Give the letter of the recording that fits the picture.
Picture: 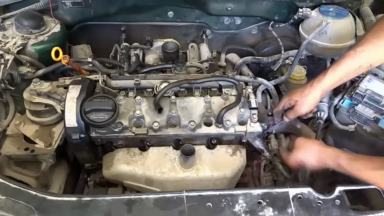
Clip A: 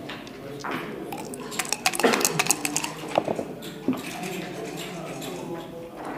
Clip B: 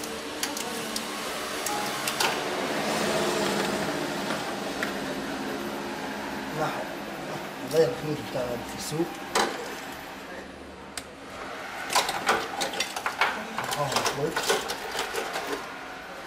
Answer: B